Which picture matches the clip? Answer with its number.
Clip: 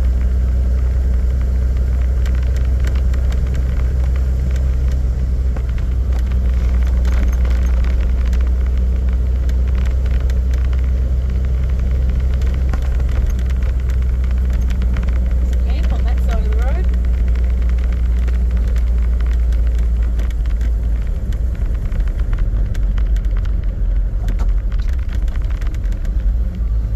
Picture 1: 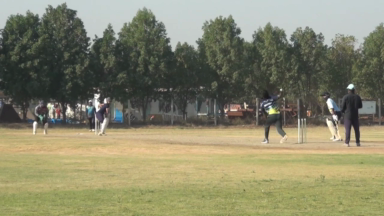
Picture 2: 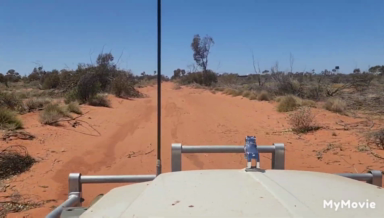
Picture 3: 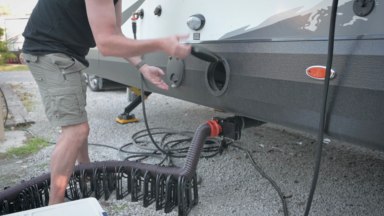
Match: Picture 2